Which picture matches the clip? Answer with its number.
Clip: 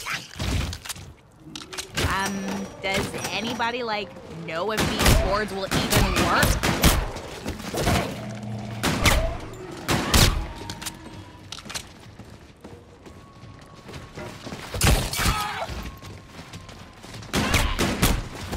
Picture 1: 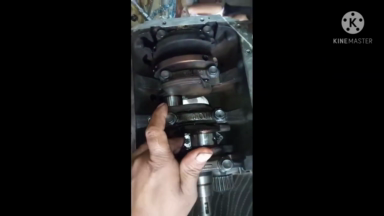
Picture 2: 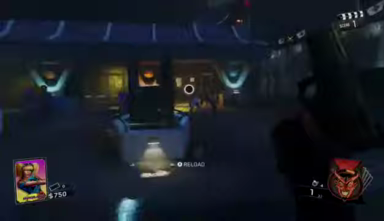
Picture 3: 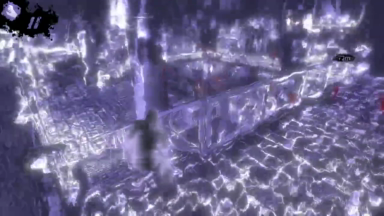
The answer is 2